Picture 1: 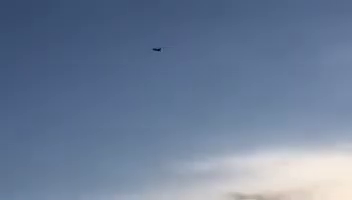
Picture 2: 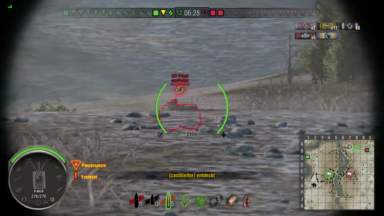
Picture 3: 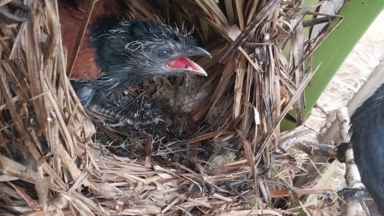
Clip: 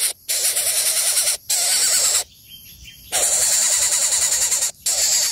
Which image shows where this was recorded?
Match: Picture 3